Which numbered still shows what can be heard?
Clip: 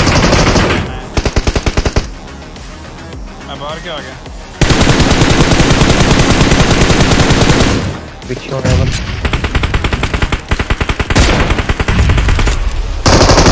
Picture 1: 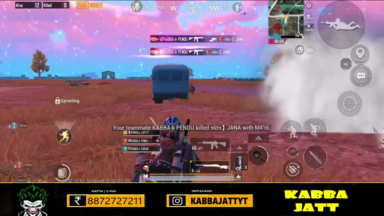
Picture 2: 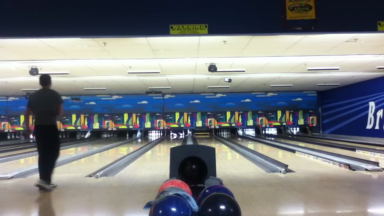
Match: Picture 1